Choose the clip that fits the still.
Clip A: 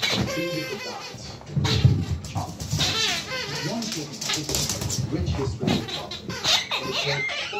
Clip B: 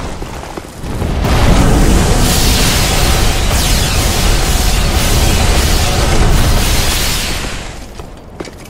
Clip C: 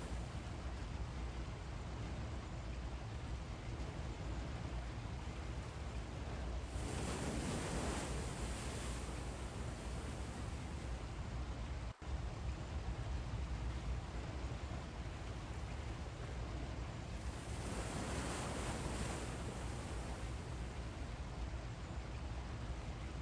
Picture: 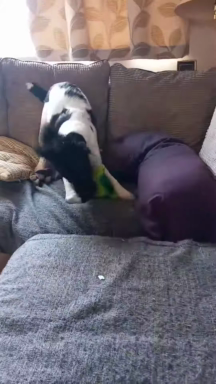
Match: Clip A